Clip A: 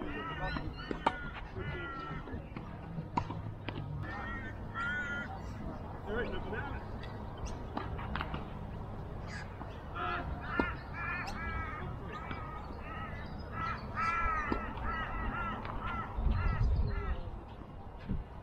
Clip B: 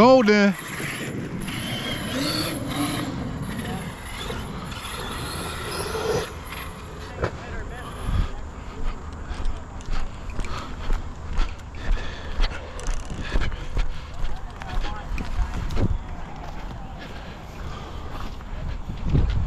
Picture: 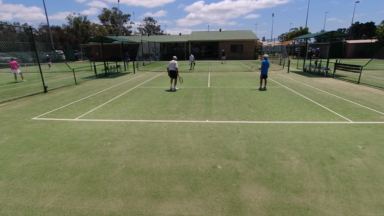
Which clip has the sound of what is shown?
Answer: A